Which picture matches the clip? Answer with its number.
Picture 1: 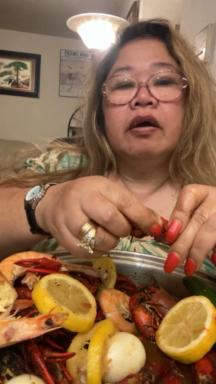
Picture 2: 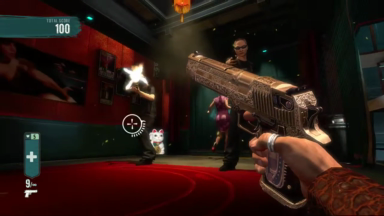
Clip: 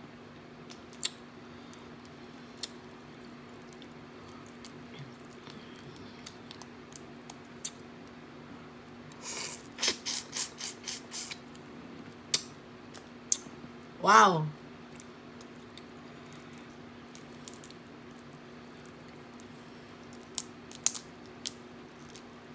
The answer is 1